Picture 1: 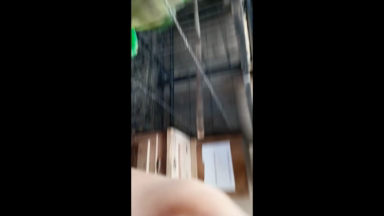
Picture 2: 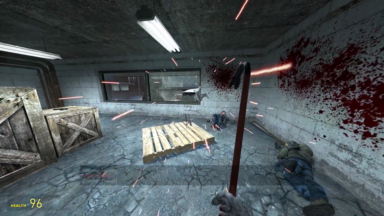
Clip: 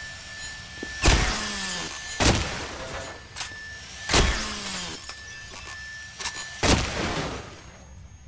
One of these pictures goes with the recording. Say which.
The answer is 2